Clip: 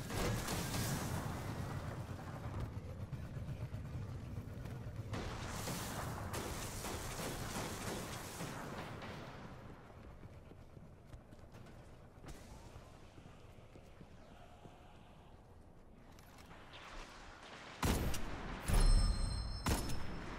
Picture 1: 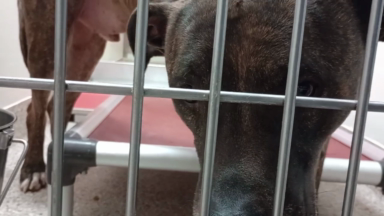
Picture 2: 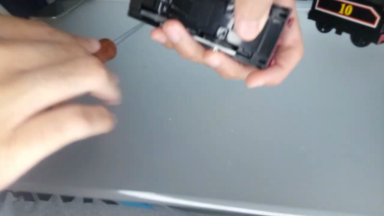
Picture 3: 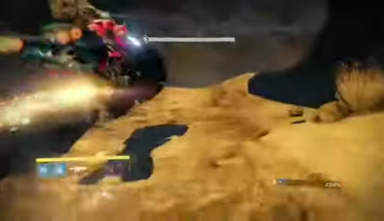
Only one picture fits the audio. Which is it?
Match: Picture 3